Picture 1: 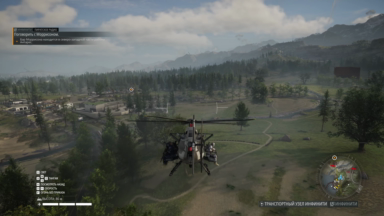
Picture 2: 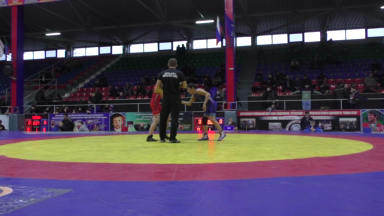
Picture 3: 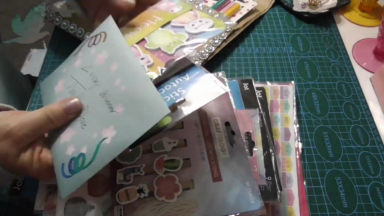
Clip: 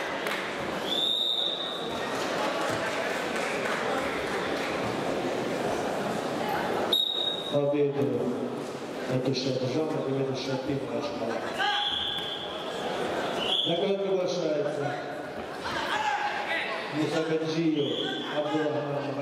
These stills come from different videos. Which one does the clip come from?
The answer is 2